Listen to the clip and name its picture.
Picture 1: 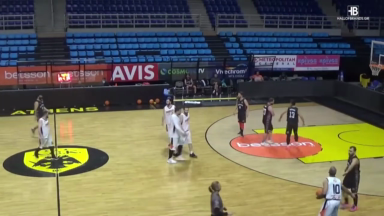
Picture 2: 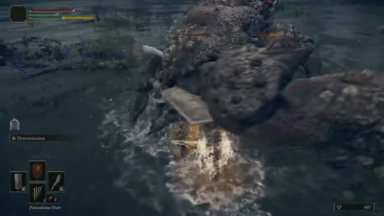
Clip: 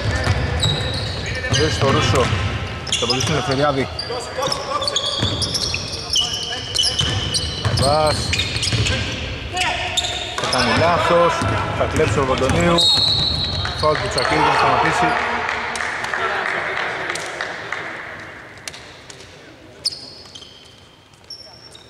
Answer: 1